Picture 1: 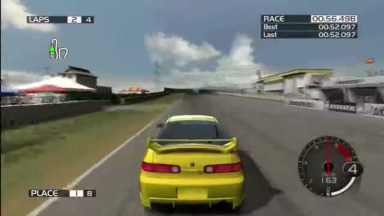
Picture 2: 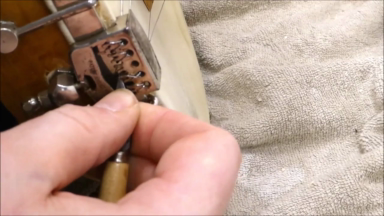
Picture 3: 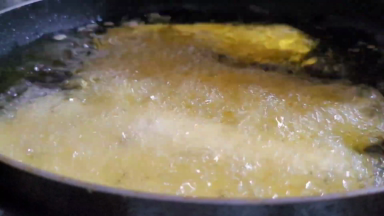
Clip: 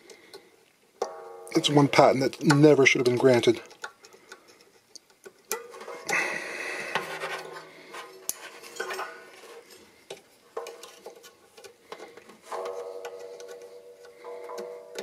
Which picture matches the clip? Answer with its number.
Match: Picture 2